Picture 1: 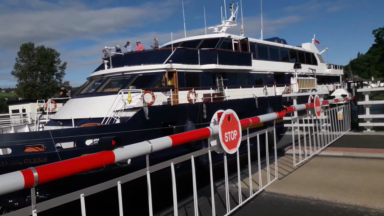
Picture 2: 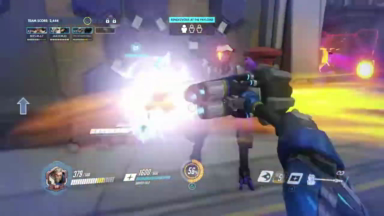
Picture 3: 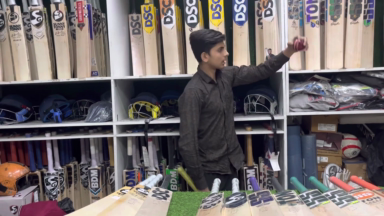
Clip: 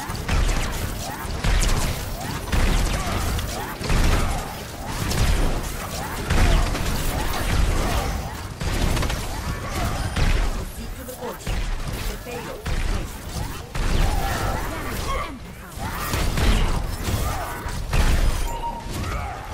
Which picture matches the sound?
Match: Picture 2